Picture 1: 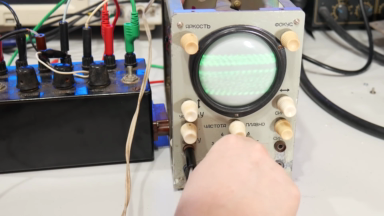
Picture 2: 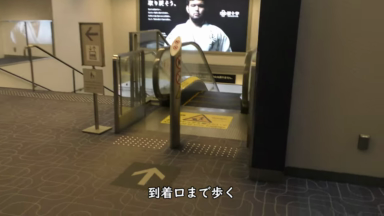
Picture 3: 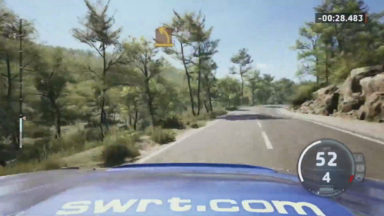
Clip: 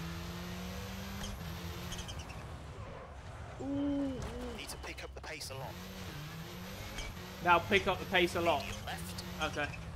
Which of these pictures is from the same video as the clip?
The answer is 3